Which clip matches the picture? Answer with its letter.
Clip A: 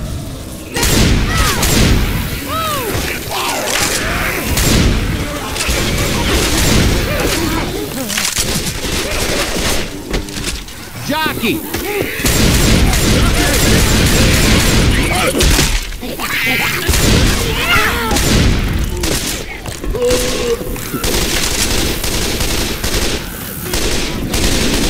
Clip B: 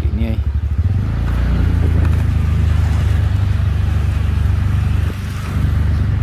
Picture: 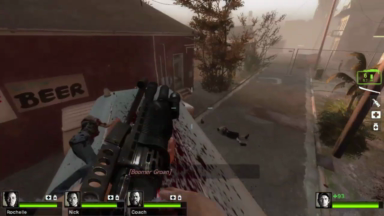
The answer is A